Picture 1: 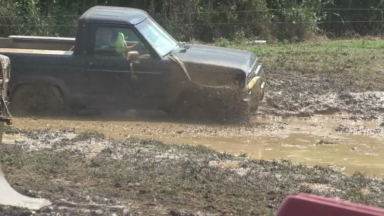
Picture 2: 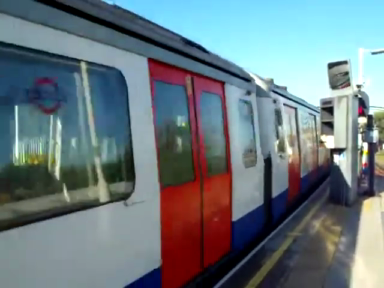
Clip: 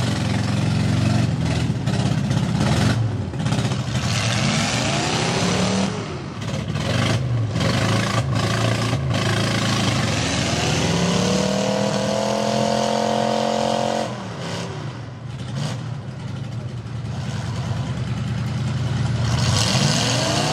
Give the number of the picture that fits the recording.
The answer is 1